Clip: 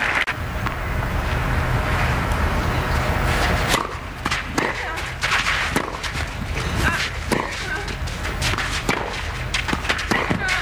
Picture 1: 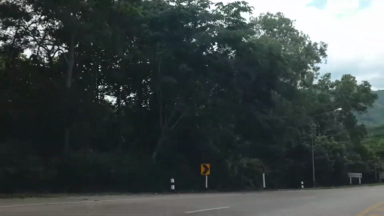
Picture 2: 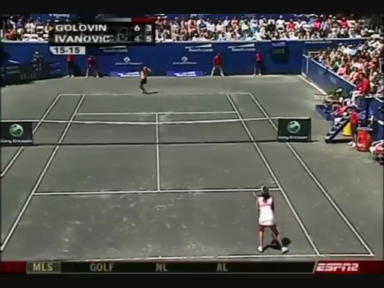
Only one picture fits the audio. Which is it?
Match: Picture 2